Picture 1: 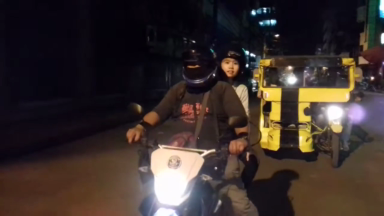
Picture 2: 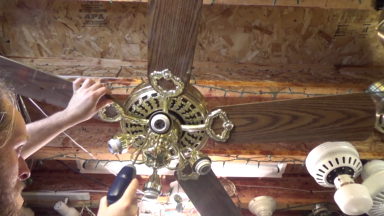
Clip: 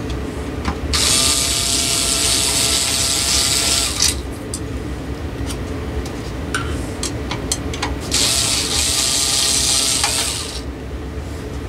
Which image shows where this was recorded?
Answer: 2